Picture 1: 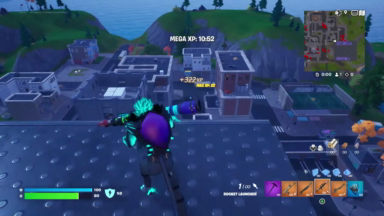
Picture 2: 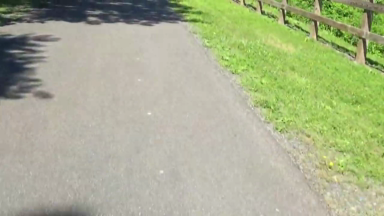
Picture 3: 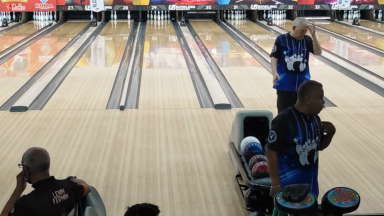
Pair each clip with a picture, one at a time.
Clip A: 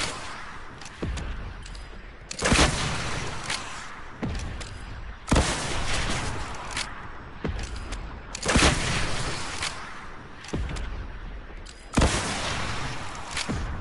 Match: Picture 1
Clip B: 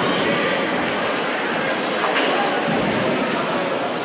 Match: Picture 3